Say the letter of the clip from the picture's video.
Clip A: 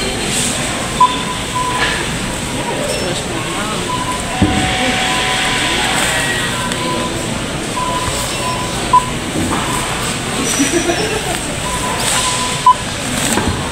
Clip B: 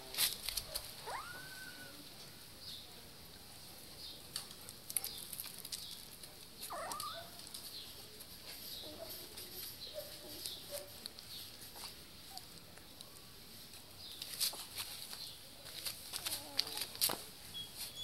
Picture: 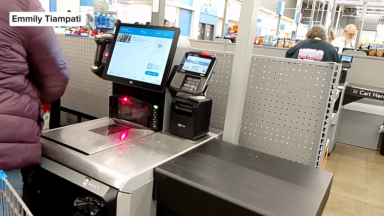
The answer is A